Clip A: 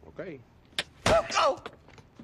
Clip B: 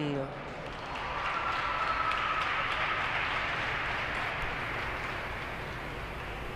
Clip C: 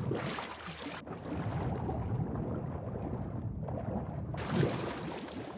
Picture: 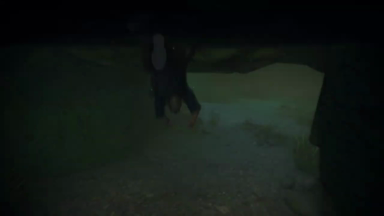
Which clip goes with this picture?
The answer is C